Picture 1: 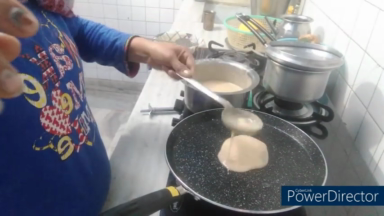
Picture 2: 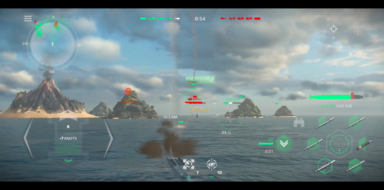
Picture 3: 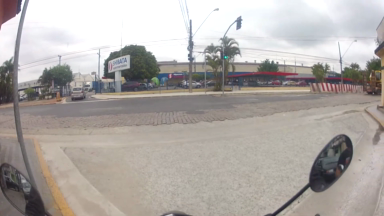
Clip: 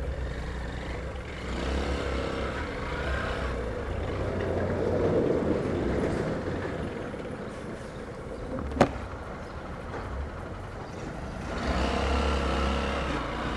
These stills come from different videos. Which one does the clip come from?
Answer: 3